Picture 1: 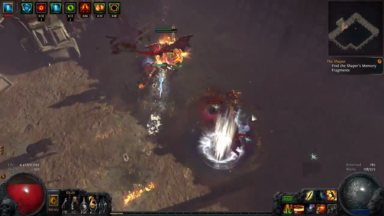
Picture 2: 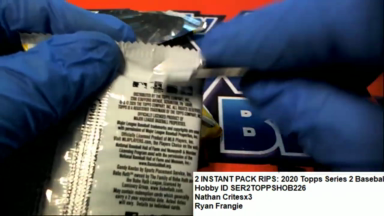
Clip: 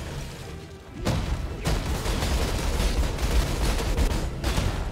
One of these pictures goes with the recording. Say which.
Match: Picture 1